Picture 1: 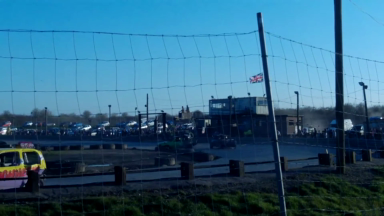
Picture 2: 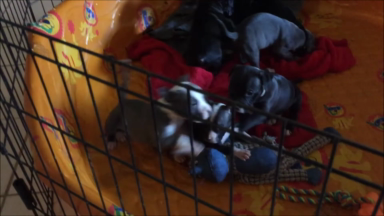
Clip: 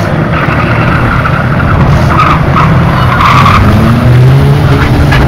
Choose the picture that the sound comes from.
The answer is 1